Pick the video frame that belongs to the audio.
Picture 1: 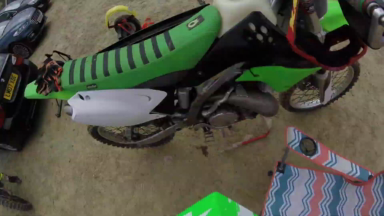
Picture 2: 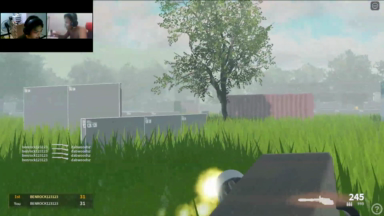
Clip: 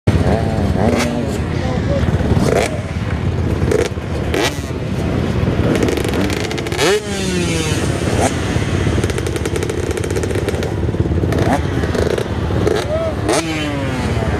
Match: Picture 1